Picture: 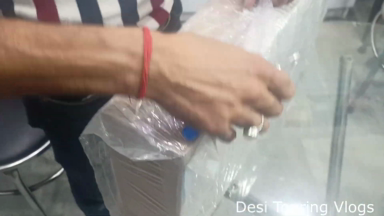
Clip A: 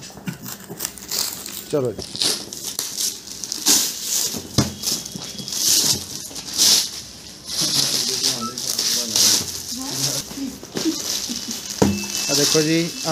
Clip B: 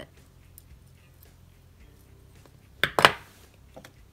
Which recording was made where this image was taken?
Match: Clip A